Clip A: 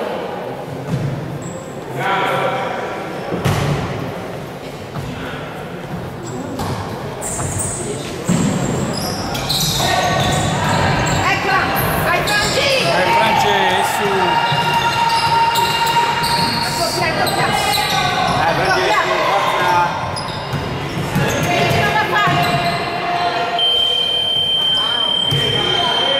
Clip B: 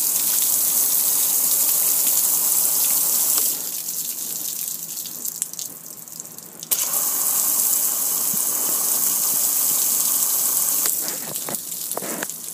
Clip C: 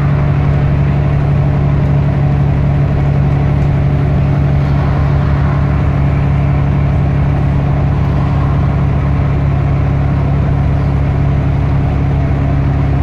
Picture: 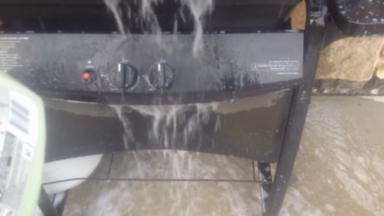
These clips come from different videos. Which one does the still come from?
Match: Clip B